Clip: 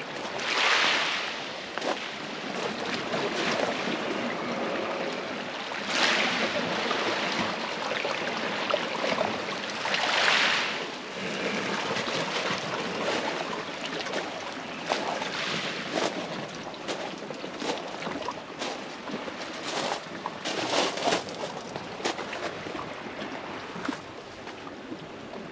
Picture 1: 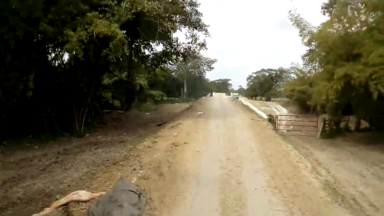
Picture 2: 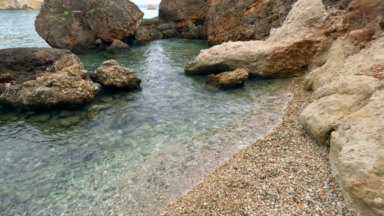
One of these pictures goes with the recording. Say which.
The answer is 2